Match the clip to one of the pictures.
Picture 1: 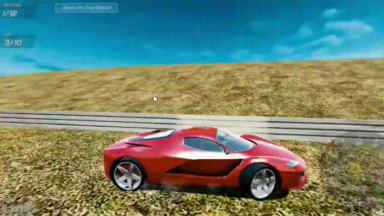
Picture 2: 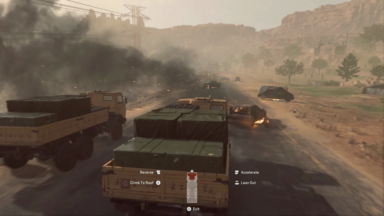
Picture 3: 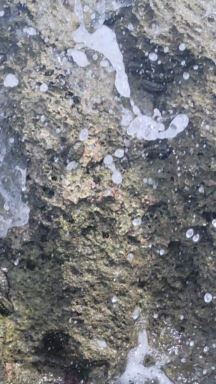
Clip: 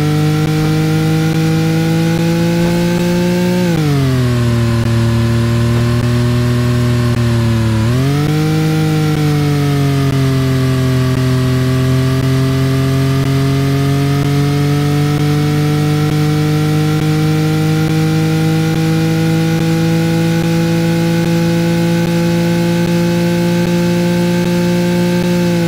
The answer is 1